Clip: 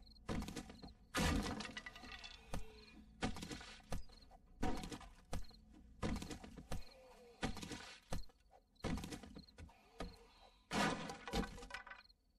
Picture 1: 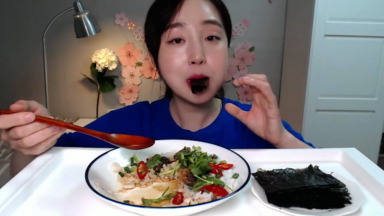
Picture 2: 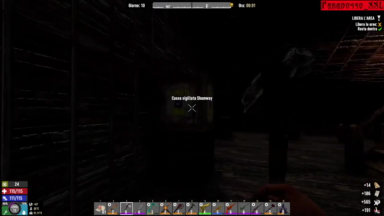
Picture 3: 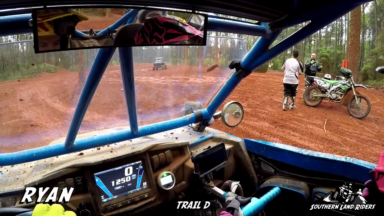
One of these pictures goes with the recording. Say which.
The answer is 2